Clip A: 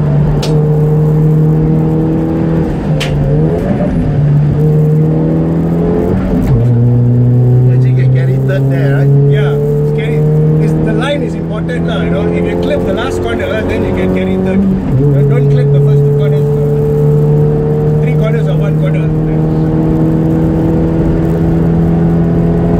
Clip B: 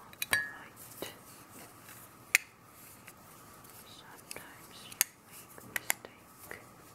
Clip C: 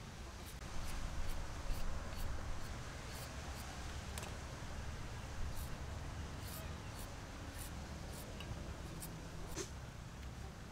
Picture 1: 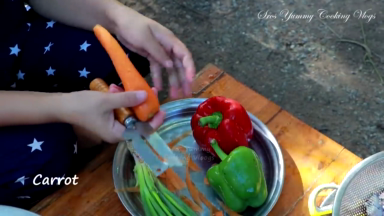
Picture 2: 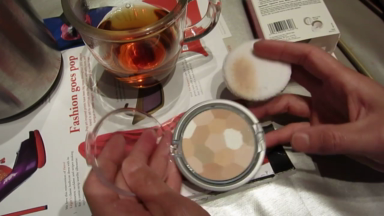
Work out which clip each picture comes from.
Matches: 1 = C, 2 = B